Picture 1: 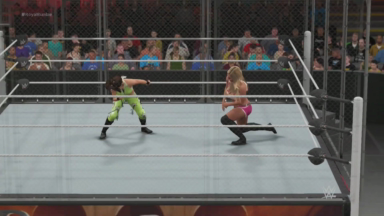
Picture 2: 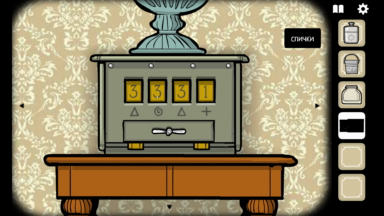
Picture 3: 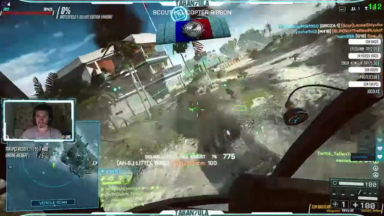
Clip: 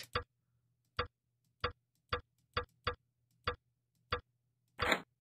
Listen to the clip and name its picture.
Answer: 2